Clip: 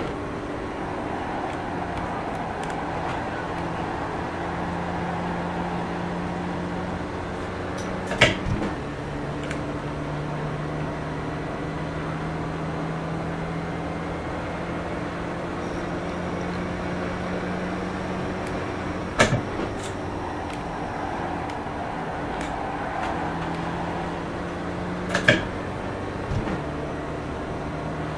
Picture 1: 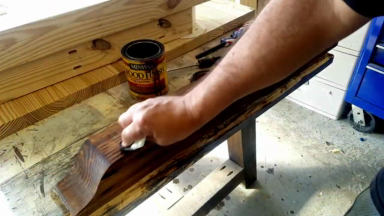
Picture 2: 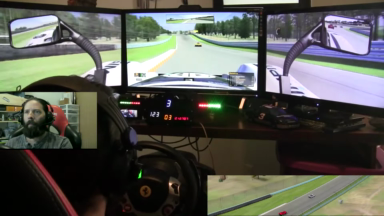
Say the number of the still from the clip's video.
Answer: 2